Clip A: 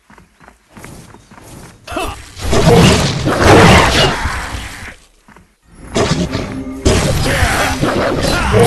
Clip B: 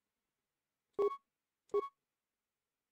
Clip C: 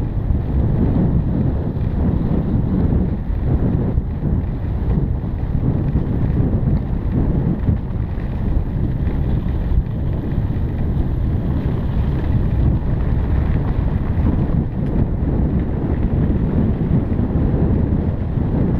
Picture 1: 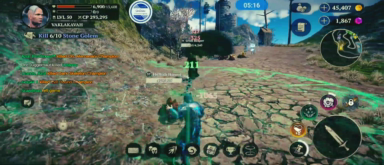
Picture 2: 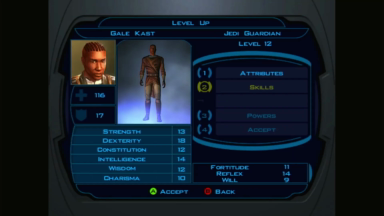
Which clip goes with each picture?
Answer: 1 A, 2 B